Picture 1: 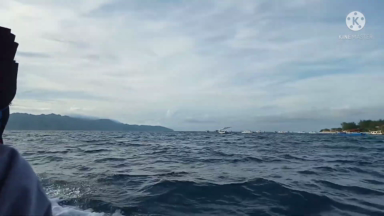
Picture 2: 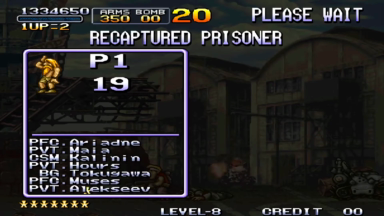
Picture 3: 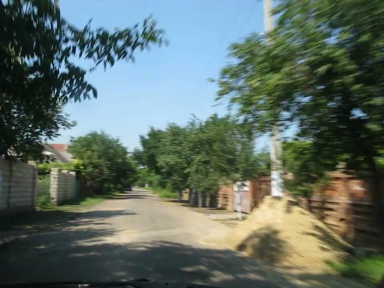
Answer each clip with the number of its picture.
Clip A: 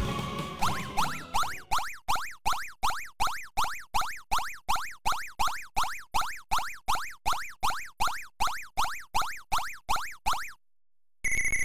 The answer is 2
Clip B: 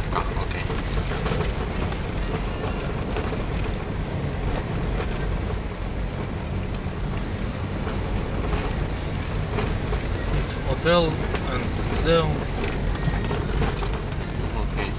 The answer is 3